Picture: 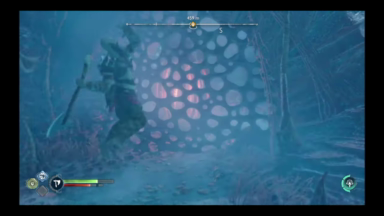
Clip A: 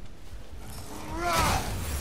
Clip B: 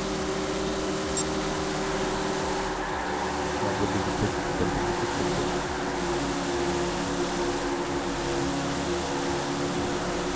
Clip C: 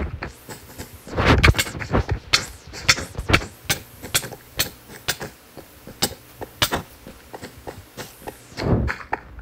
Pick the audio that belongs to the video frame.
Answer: A